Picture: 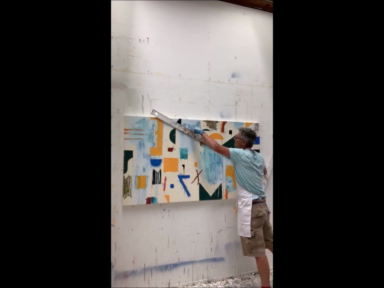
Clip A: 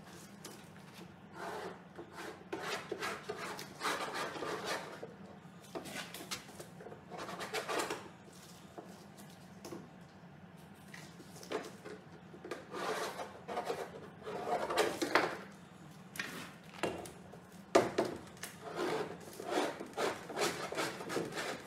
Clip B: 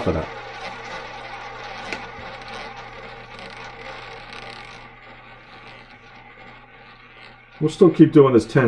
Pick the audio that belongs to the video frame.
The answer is A